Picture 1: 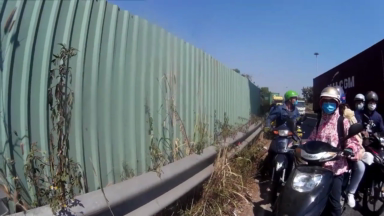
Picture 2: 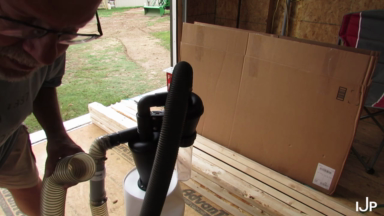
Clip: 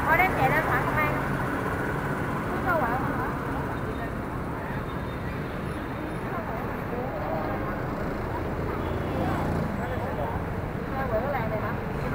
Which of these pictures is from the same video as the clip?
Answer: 1